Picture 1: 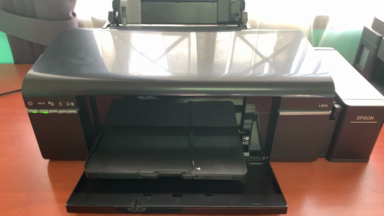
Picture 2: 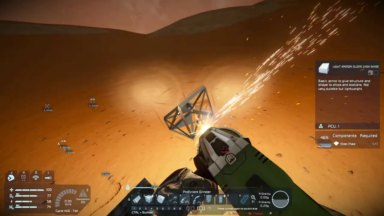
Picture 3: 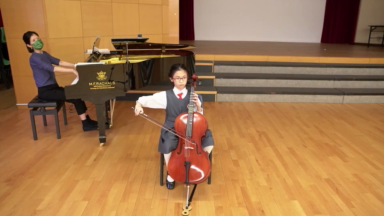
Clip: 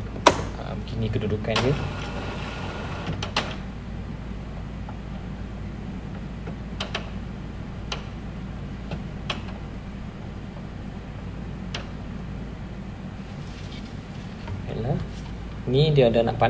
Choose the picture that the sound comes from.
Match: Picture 1